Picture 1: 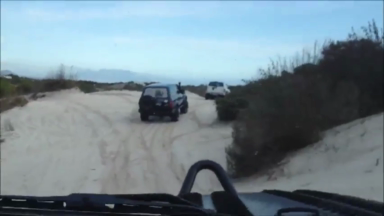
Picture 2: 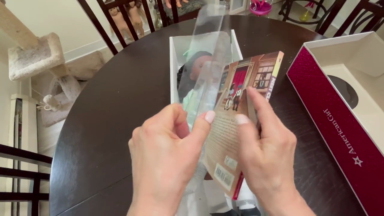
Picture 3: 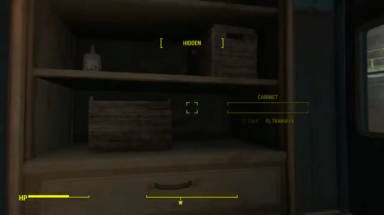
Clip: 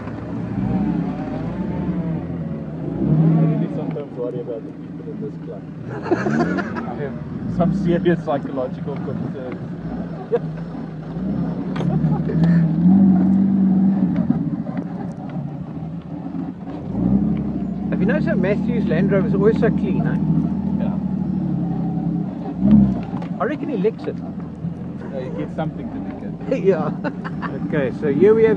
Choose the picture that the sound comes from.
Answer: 1